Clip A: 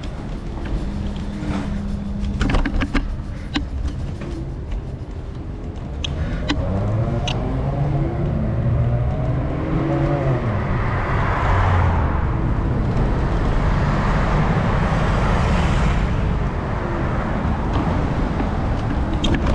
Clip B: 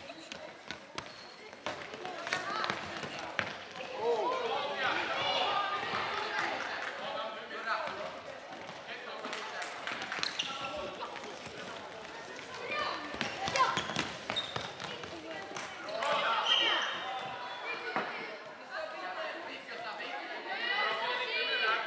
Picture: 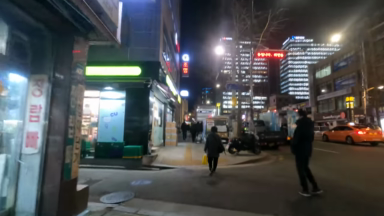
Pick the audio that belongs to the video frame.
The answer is A